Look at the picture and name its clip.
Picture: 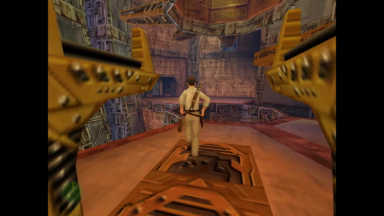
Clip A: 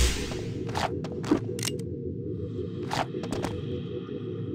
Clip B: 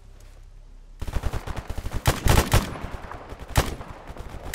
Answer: A